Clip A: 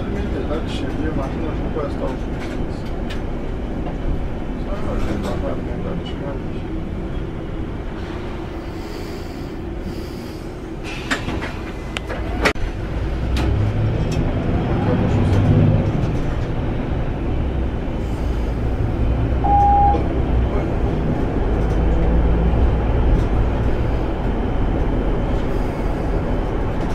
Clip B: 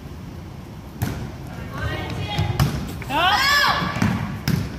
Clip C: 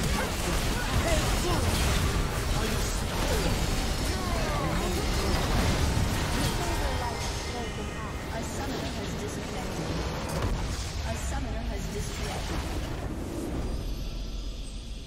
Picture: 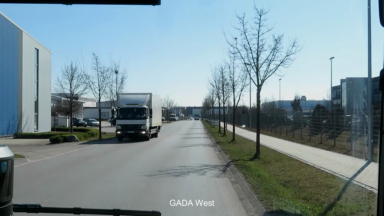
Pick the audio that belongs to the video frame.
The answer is A